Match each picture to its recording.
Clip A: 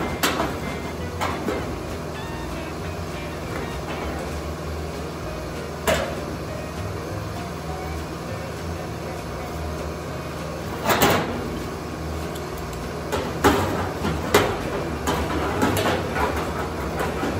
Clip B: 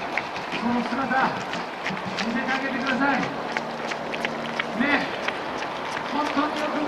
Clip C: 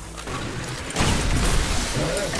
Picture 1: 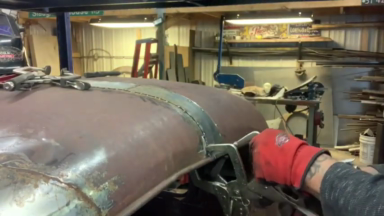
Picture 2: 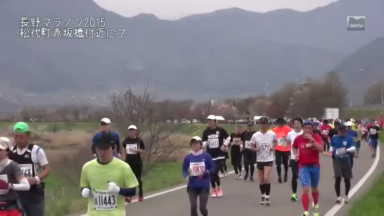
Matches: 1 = A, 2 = B